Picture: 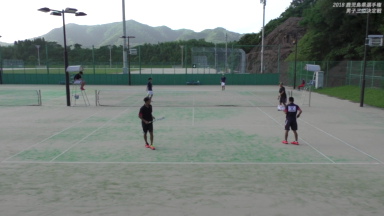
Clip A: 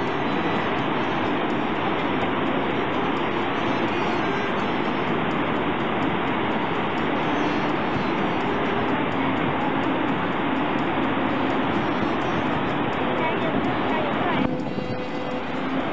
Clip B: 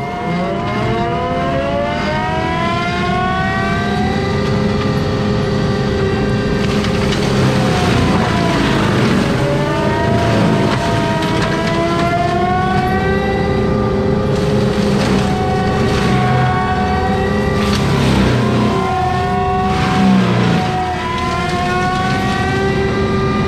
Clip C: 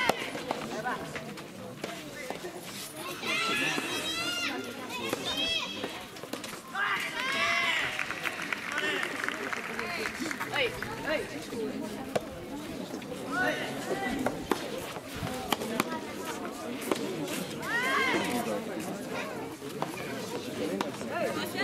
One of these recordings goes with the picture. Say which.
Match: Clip C